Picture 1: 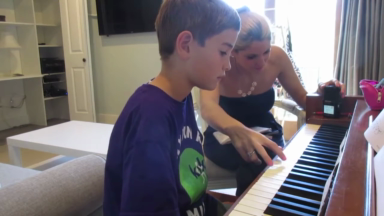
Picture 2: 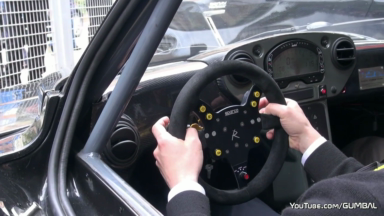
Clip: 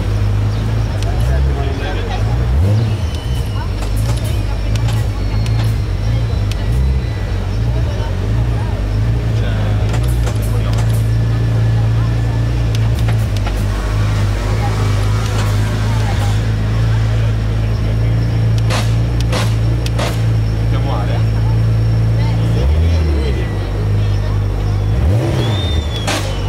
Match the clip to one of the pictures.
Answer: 2